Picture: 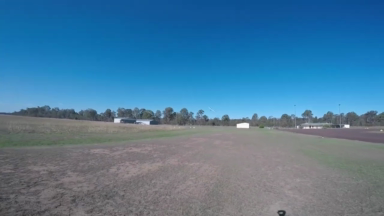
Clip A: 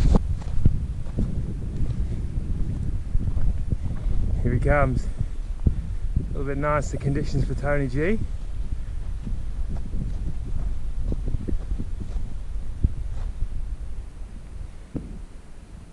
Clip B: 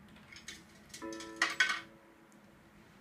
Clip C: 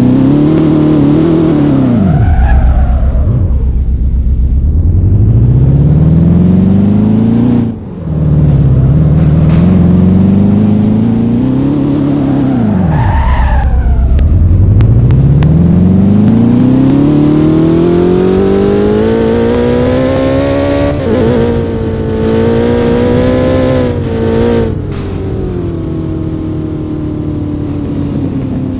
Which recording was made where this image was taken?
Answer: A